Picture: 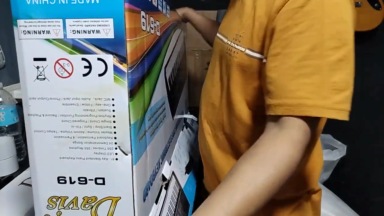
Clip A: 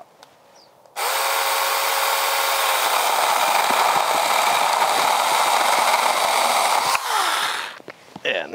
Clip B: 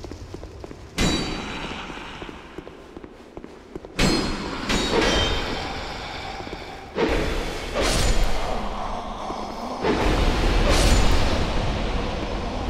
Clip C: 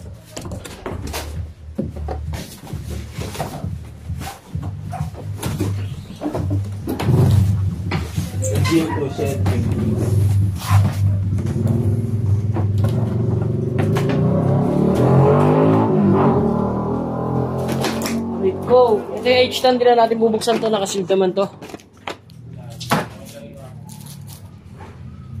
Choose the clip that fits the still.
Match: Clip C